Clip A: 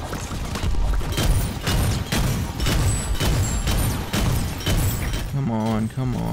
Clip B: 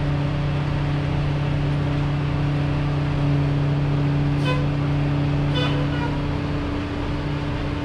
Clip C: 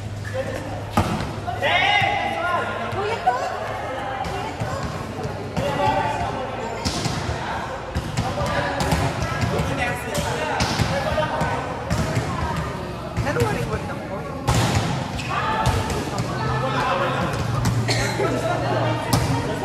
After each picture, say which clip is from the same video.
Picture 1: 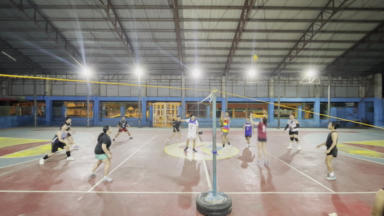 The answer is C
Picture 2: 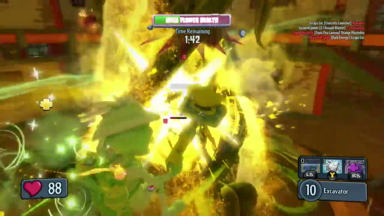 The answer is A